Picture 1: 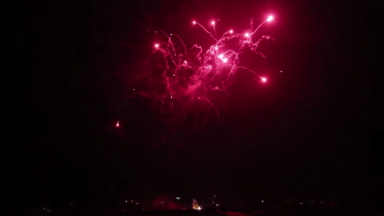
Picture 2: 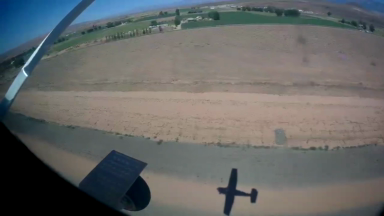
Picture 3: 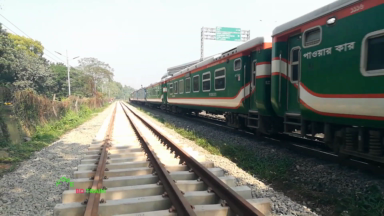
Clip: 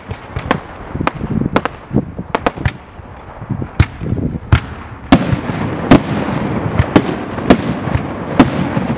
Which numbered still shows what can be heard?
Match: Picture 1